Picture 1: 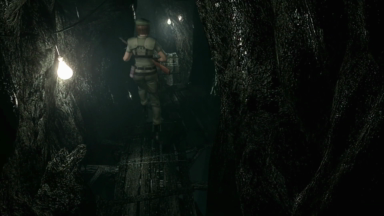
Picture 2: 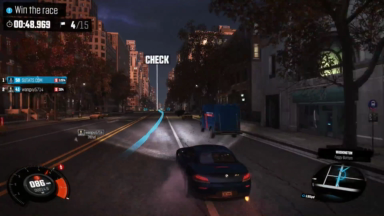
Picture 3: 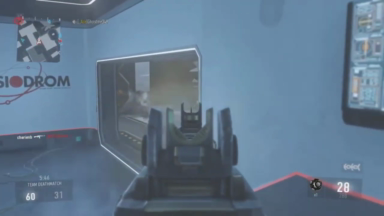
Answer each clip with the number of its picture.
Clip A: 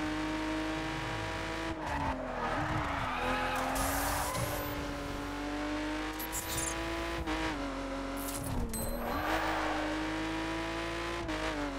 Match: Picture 2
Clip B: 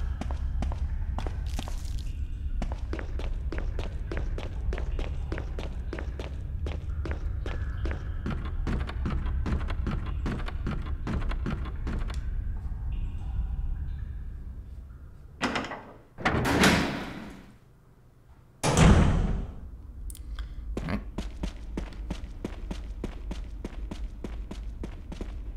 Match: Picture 1